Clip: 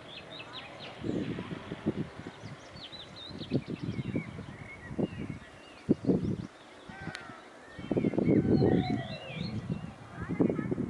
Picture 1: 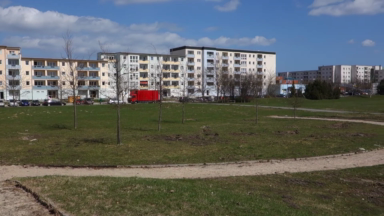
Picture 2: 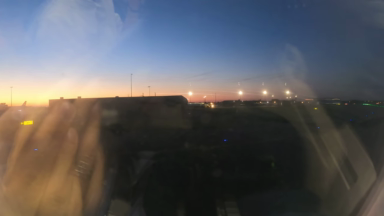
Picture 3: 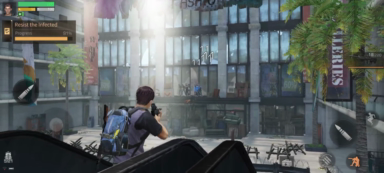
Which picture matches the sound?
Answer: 1